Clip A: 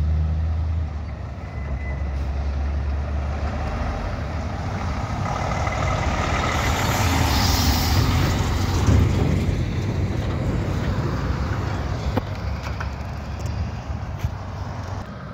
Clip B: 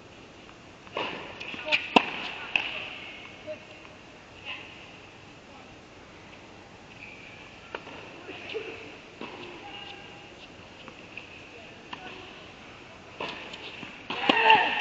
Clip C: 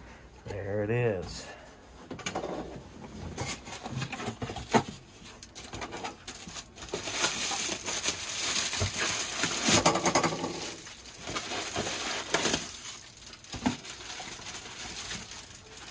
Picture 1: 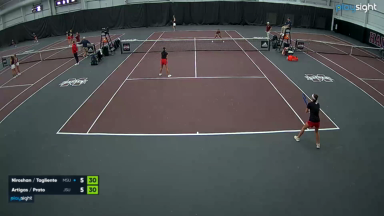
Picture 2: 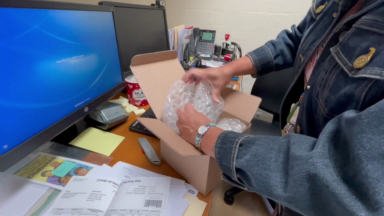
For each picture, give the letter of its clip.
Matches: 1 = B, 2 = C